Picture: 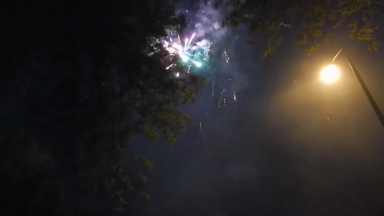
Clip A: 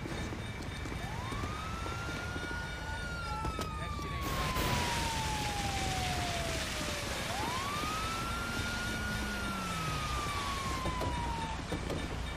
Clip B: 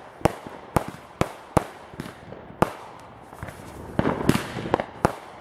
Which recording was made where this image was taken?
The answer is B